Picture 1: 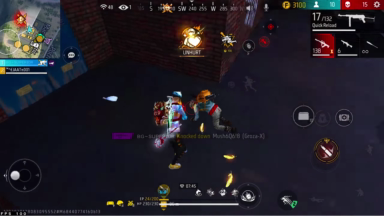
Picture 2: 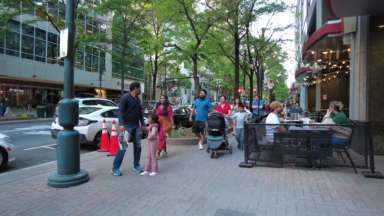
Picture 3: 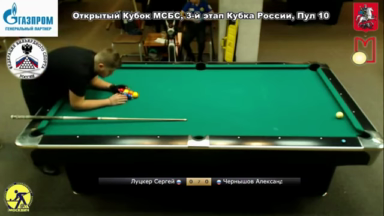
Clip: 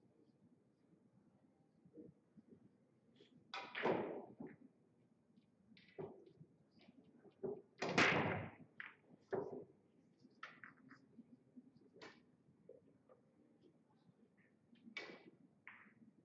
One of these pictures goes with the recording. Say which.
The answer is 3